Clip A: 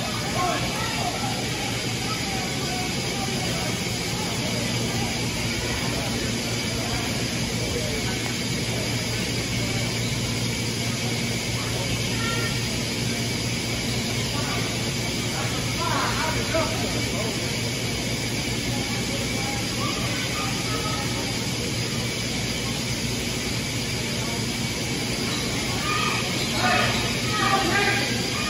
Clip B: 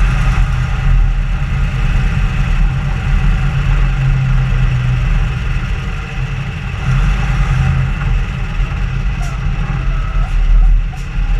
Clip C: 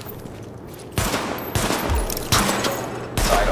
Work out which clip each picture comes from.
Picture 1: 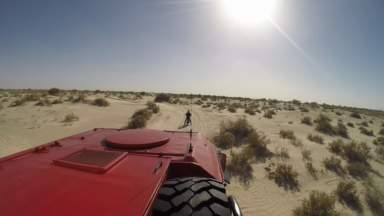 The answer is B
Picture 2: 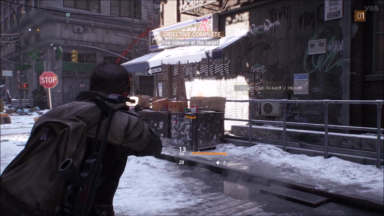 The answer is C